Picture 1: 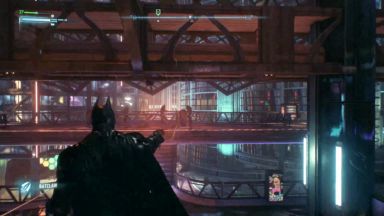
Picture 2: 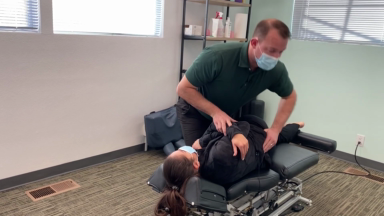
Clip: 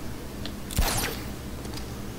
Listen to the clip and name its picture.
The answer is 1